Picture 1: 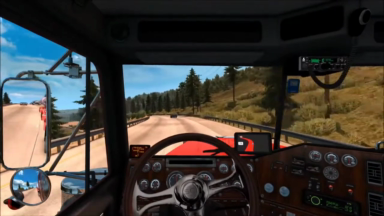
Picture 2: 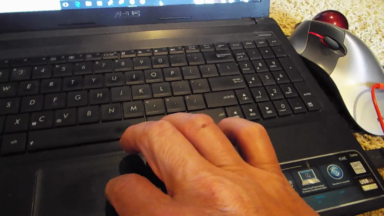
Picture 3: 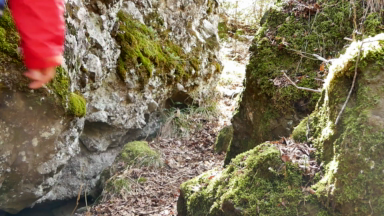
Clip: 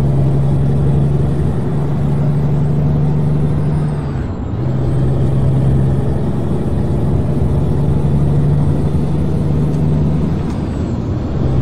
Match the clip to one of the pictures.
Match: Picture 1